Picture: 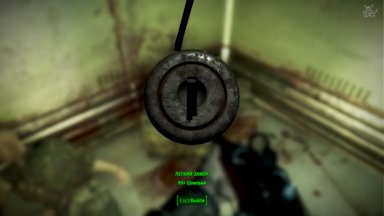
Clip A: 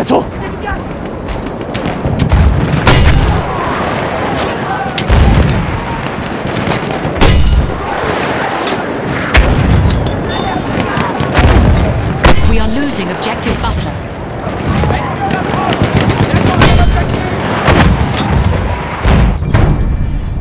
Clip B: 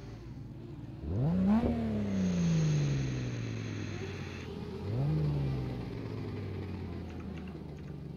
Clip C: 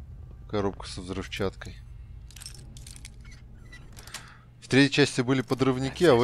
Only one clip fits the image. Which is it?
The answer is C